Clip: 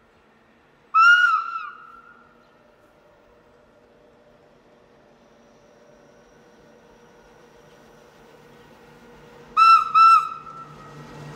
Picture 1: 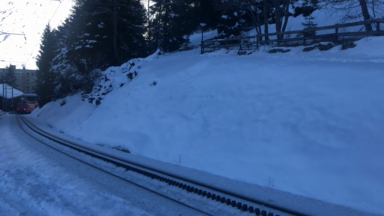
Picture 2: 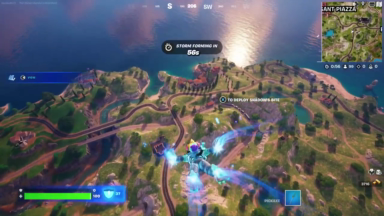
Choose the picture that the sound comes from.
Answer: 1